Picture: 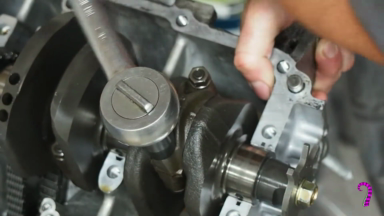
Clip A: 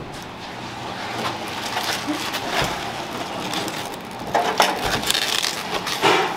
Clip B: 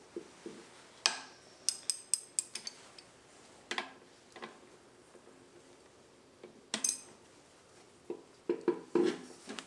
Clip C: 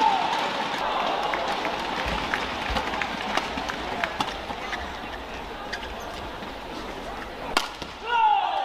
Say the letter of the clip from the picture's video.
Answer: B